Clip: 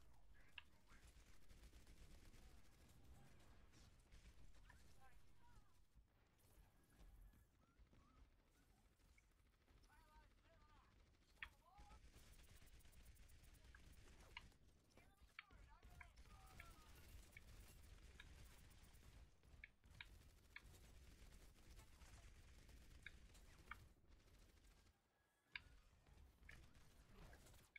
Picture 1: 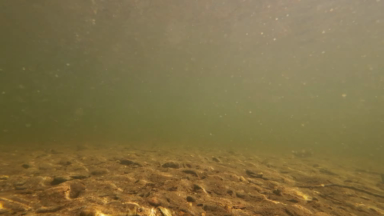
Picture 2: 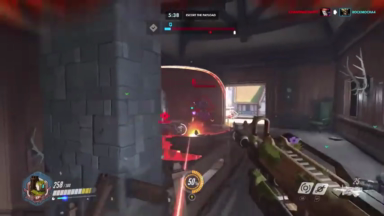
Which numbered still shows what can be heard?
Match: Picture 2